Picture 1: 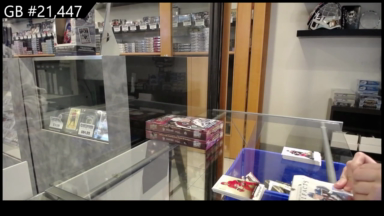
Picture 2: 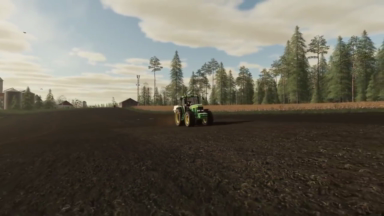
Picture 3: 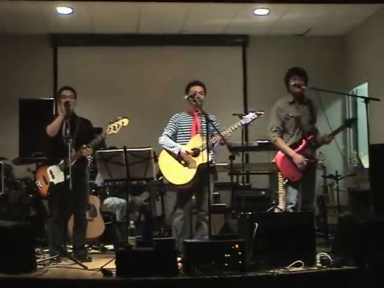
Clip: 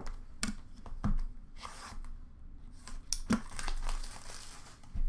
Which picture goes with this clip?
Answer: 1